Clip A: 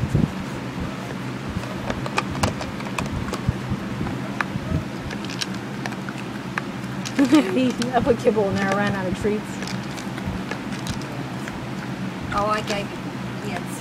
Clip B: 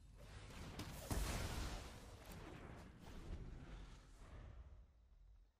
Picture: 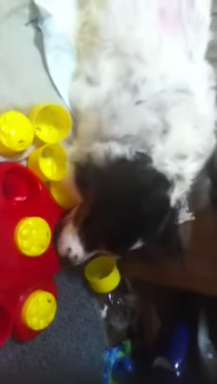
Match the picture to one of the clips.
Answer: A